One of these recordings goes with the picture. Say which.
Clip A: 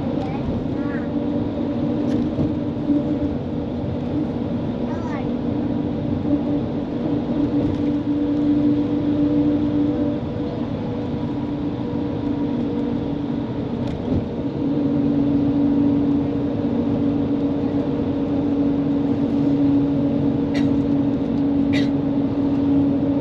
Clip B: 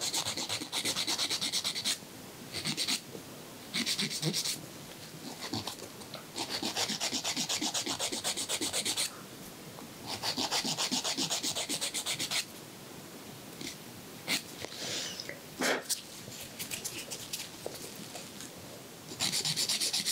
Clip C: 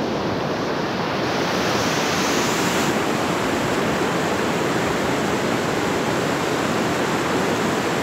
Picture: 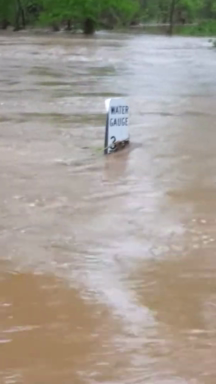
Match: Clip C